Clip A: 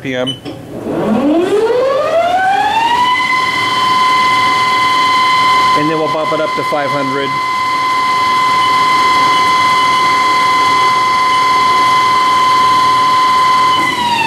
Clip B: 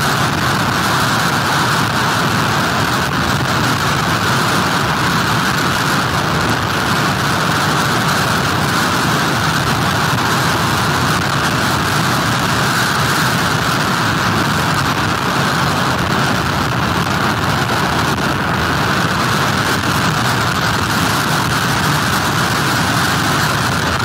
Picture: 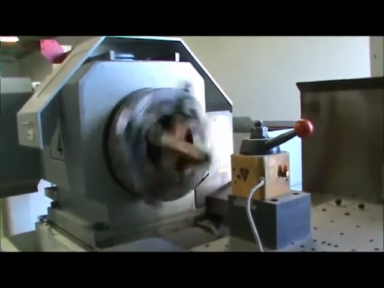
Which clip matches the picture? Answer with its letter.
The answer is A